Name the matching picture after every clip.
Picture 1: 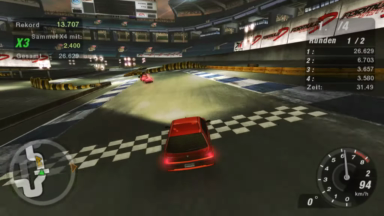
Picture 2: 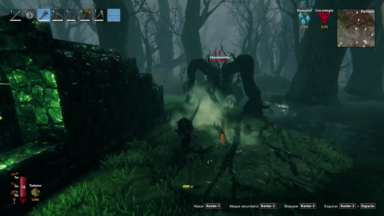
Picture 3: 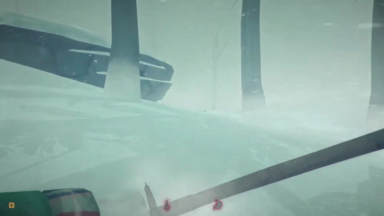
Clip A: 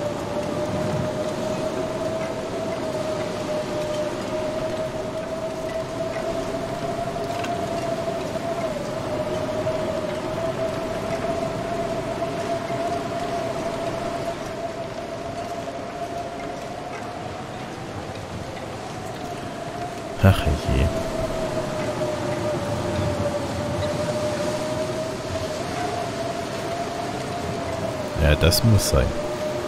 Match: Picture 3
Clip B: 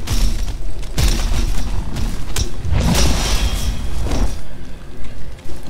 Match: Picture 2